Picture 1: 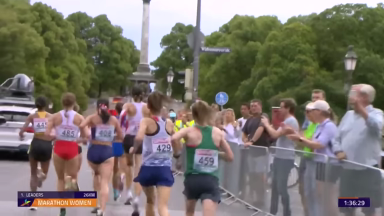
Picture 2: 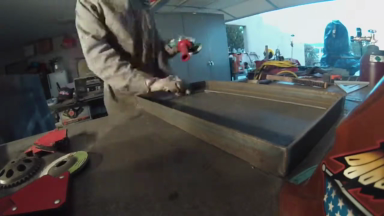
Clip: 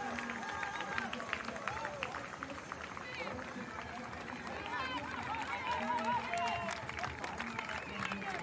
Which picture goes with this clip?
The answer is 1